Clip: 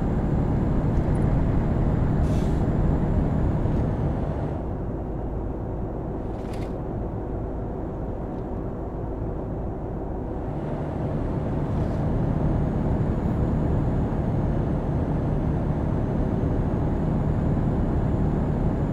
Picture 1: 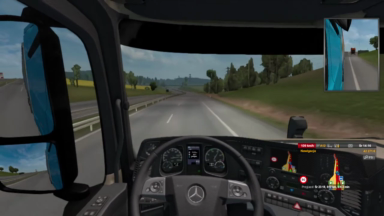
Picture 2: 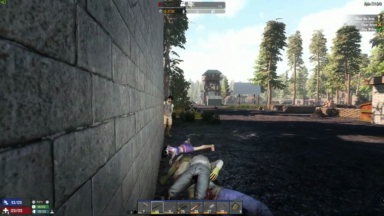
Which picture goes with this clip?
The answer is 1